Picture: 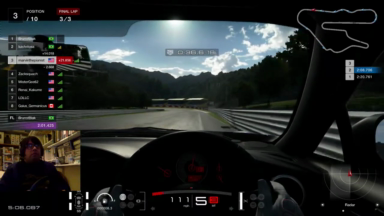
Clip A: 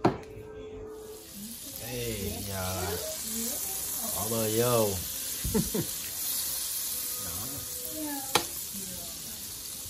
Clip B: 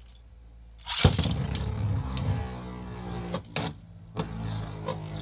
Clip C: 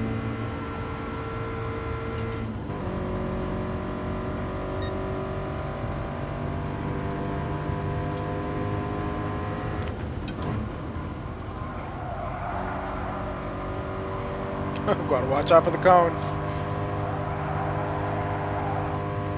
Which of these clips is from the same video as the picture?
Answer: C